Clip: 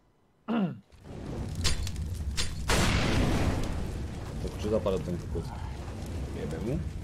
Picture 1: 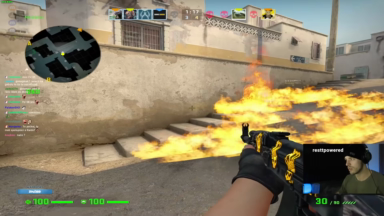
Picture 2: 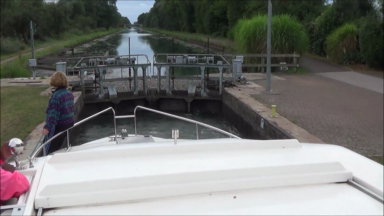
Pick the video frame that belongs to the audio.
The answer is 1